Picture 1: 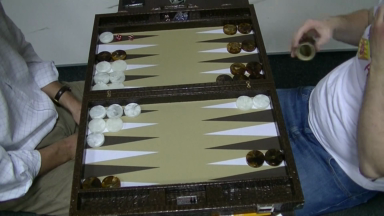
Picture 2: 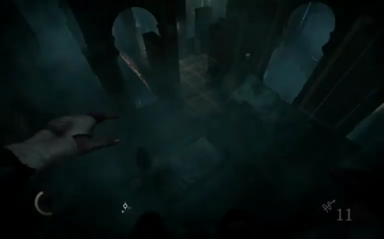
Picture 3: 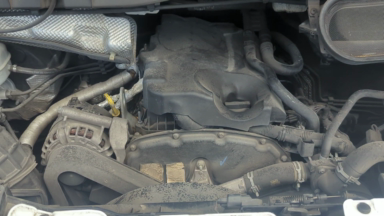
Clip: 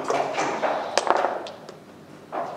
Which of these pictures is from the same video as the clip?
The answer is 1